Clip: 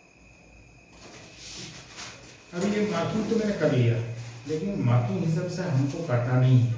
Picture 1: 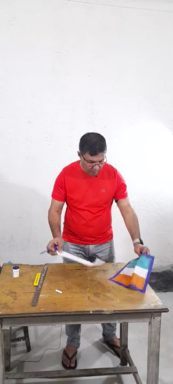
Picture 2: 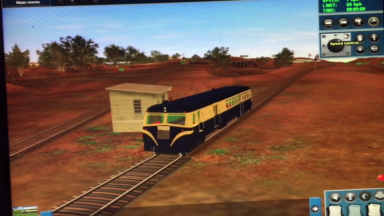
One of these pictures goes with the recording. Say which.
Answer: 1